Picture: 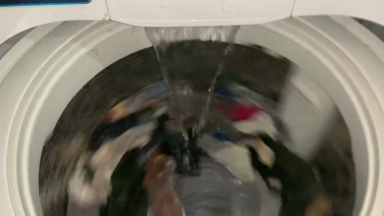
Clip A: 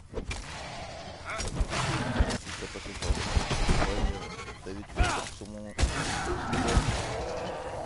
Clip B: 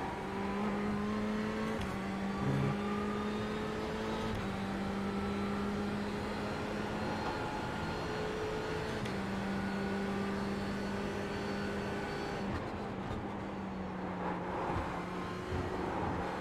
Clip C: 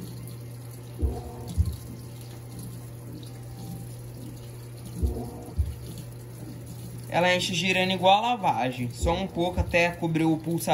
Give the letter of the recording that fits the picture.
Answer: C